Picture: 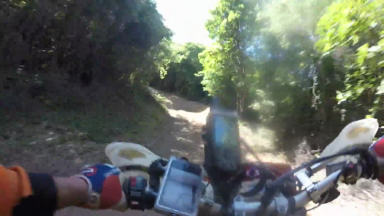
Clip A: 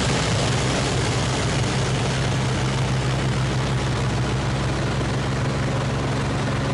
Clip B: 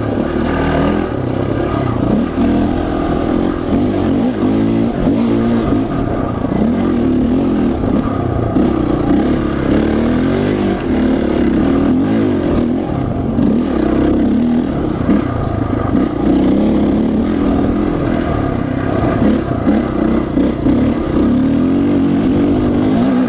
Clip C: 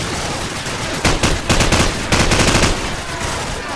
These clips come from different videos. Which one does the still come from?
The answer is B